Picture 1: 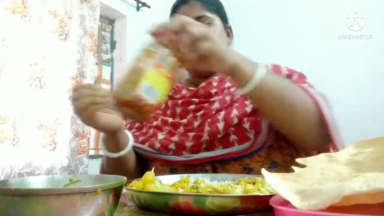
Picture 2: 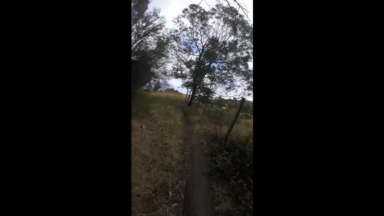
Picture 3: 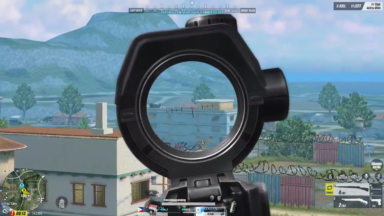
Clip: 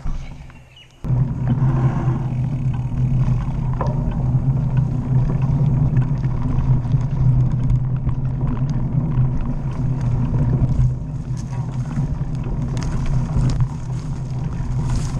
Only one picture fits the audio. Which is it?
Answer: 2